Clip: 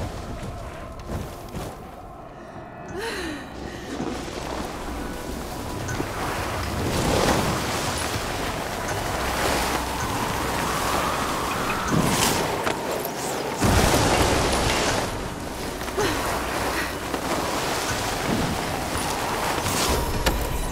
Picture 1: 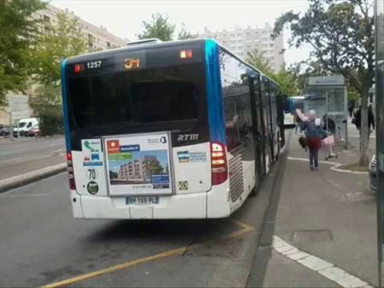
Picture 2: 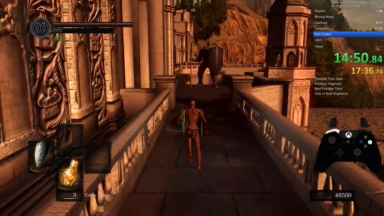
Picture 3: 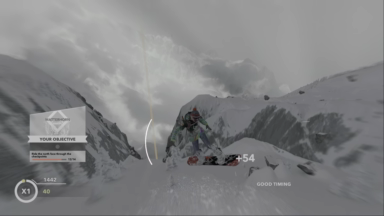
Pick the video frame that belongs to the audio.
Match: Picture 3